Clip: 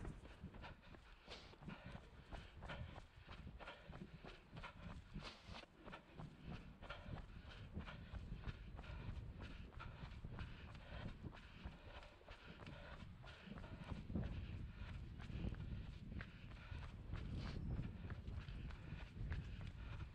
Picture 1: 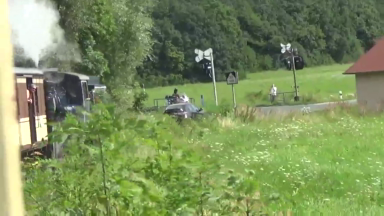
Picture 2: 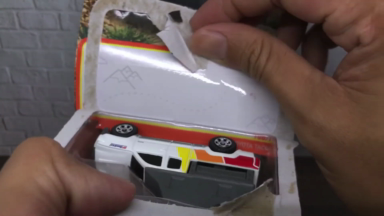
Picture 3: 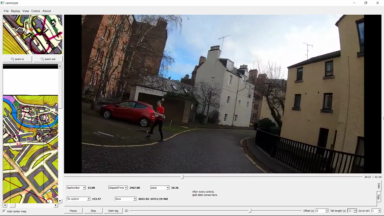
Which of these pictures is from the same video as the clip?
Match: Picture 3